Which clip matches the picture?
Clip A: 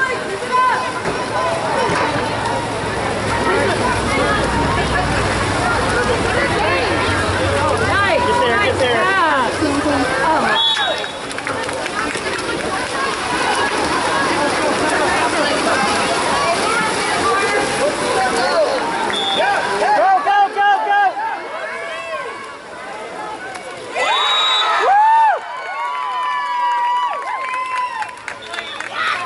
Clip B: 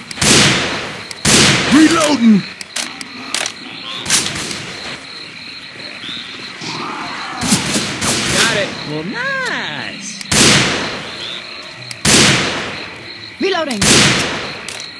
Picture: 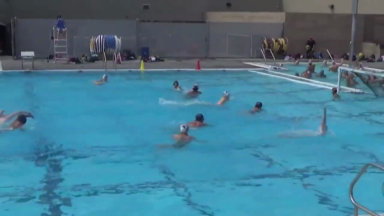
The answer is A